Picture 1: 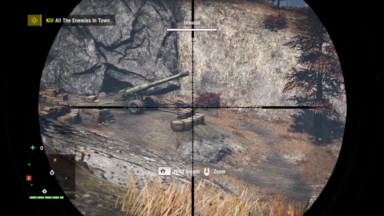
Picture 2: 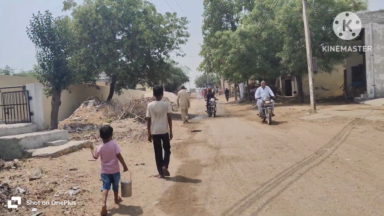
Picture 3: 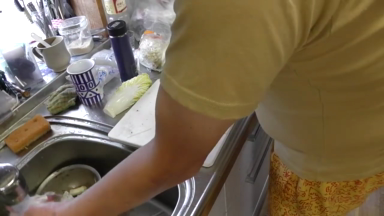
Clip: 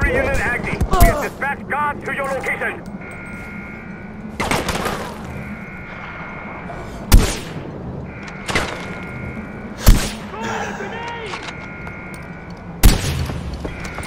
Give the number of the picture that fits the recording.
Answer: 1